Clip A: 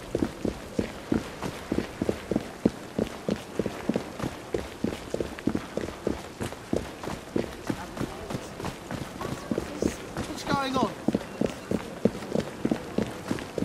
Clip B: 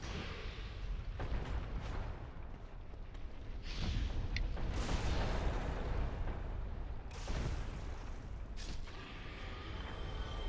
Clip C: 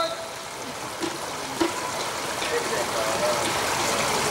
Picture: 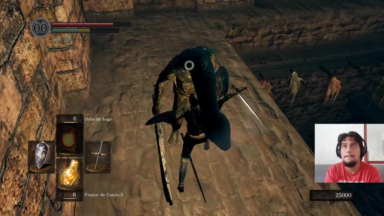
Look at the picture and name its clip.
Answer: B